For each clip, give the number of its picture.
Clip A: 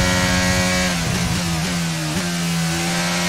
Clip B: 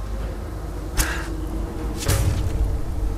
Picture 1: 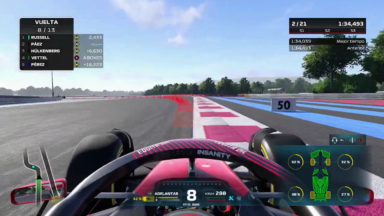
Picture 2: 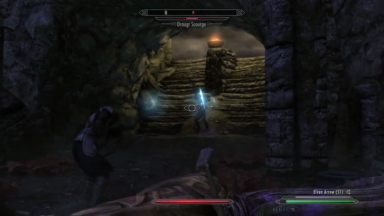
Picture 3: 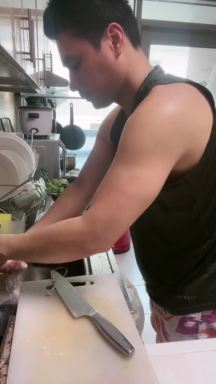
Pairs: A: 1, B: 2